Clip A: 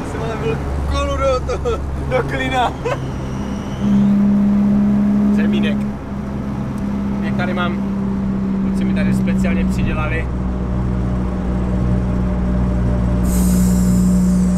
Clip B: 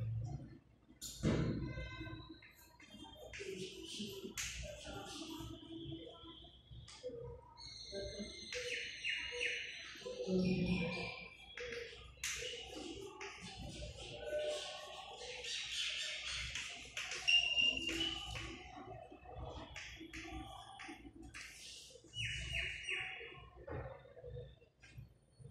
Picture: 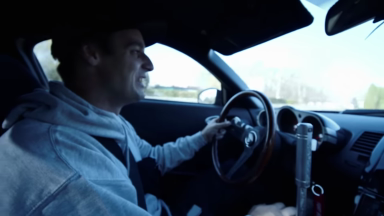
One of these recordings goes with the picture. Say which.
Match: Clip A